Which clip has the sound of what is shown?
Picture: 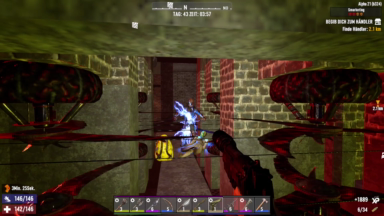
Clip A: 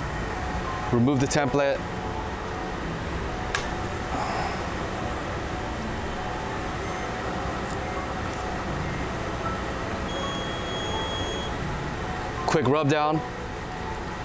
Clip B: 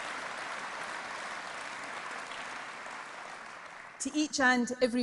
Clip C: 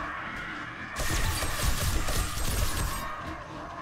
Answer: C